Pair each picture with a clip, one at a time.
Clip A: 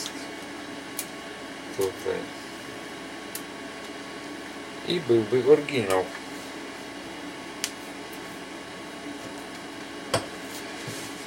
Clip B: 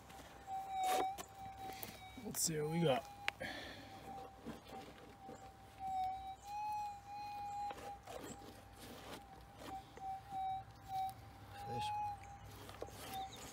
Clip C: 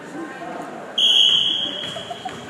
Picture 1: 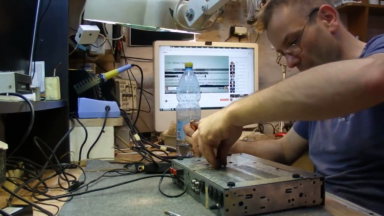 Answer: A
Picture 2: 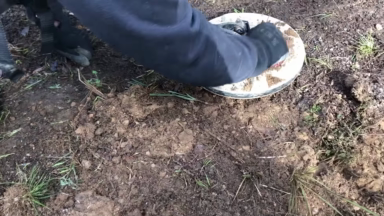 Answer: B